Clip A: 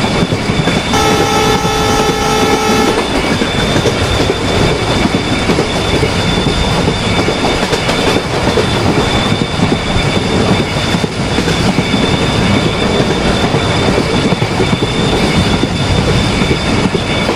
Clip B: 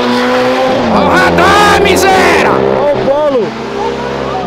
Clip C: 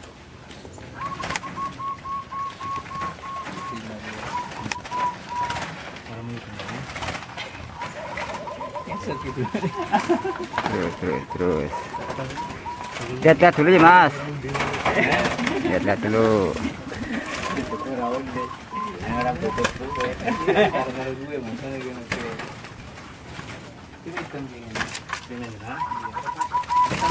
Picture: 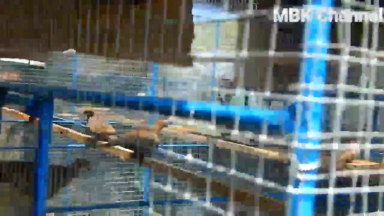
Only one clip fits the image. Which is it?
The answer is C